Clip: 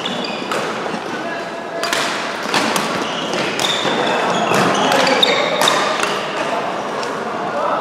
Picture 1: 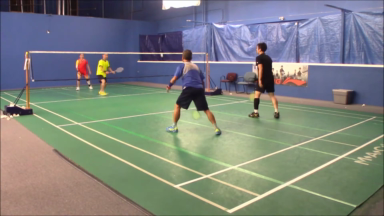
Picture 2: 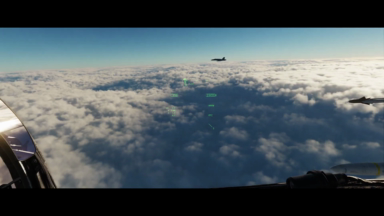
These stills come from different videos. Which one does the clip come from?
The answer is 1